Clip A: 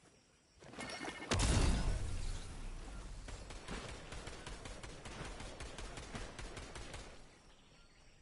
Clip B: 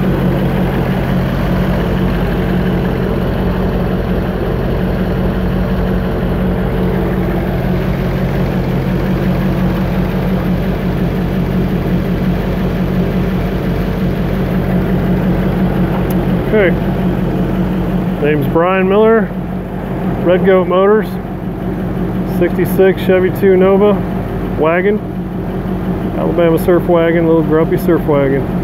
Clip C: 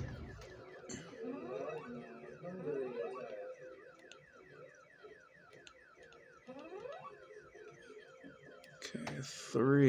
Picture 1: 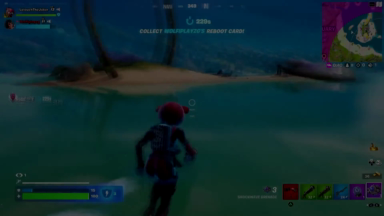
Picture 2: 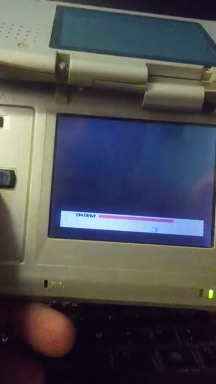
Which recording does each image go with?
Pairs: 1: A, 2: C